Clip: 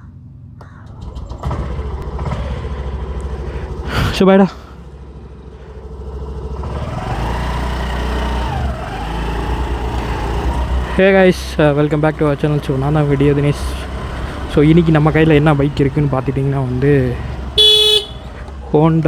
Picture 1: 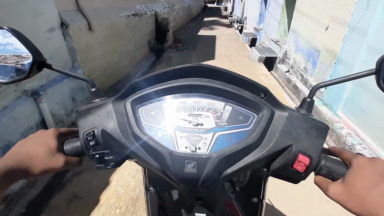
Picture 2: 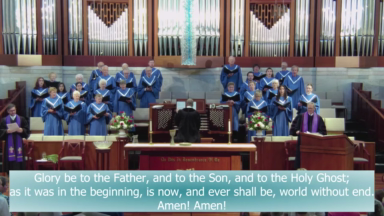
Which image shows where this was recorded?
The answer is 1